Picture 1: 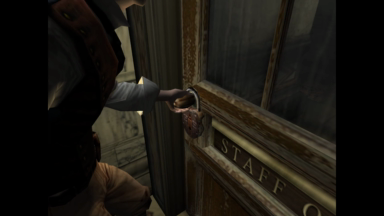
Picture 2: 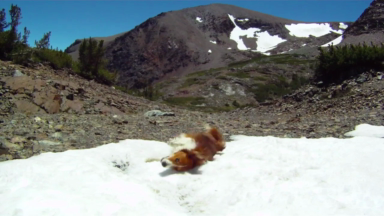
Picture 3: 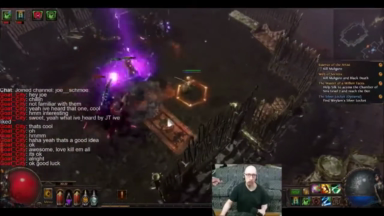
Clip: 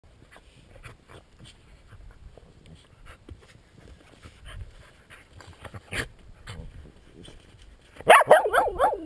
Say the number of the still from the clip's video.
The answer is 2